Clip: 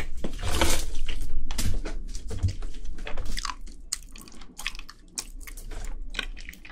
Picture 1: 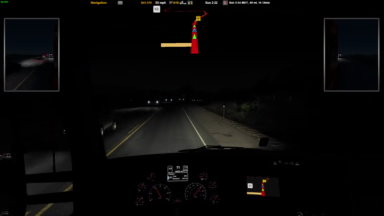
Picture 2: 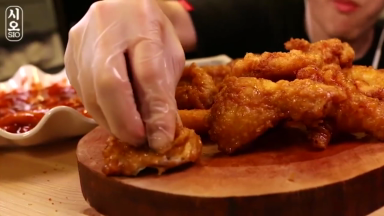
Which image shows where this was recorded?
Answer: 2